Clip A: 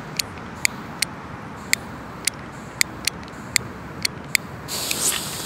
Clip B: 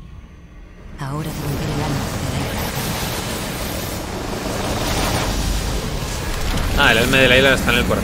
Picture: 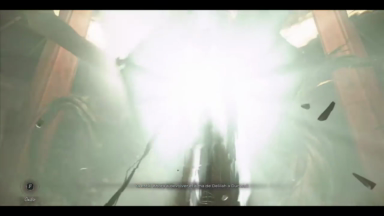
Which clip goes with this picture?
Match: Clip B